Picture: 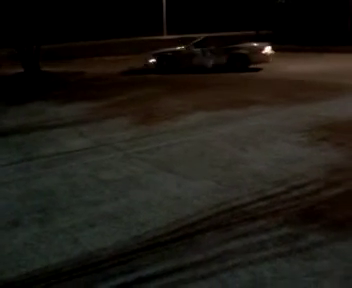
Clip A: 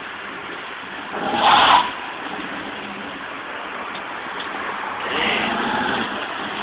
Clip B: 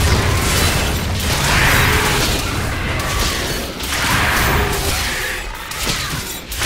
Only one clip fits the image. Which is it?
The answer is A